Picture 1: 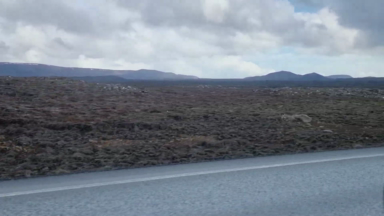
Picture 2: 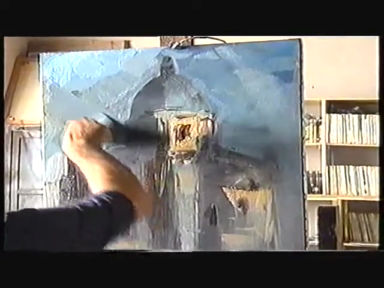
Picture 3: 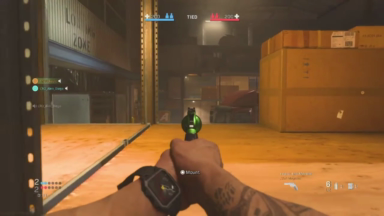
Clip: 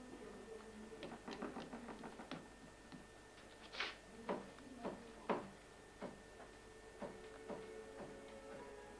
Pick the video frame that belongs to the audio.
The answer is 2